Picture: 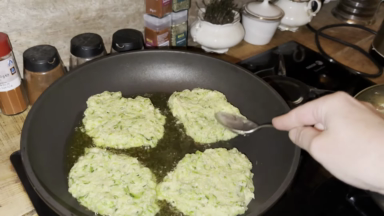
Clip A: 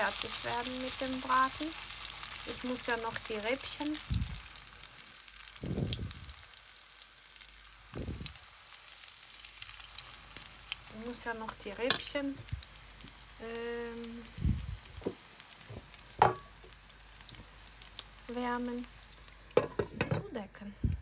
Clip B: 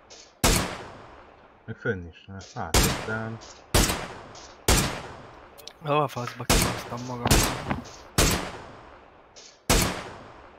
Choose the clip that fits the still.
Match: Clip A